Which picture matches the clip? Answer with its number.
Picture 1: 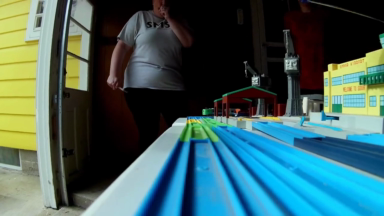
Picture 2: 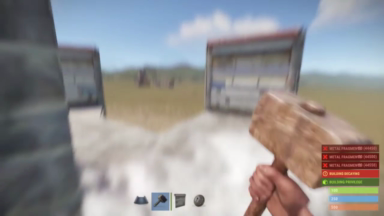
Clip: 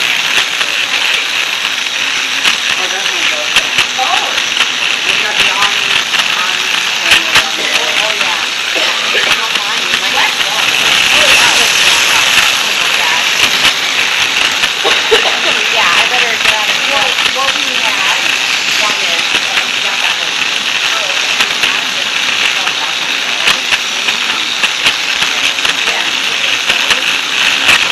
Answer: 1